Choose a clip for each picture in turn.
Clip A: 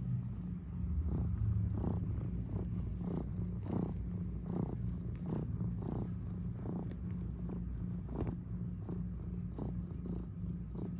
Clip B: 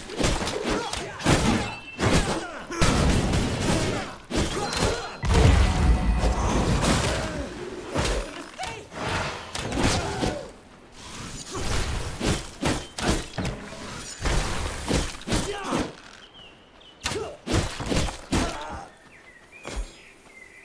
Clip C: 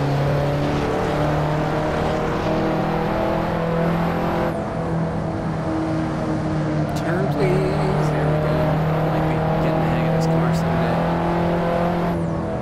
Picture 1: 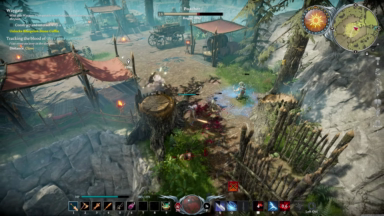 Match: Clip B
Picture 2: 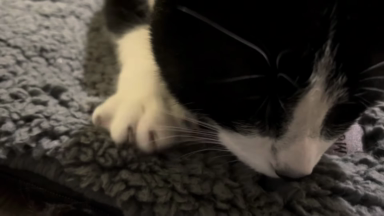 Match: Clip A